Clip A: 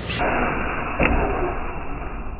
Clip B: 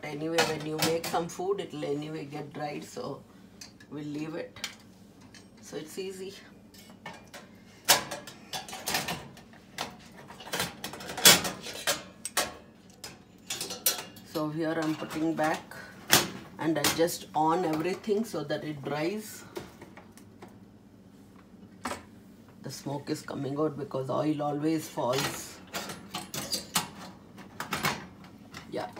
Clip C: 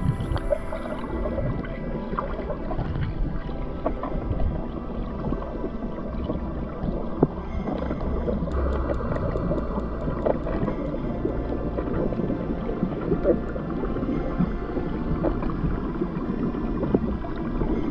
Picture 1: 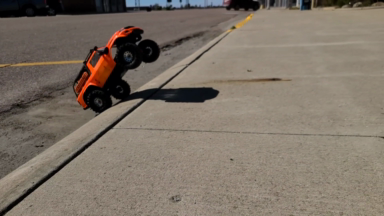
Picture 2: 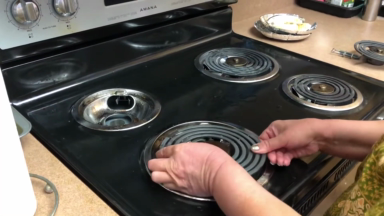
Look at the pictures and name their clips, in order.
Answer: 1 A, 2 B